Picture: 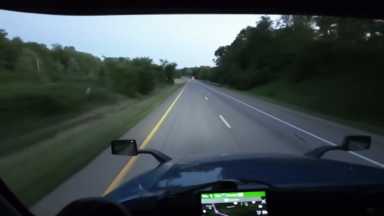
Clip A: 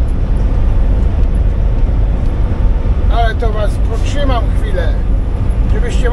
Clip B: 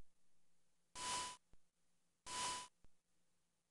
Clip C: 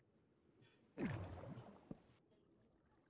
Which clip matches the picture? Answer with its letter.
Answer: A